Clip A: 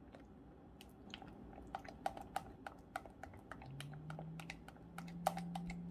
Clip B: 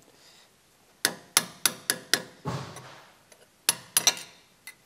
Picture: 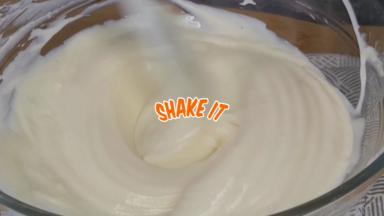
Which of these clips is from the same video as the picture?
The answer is A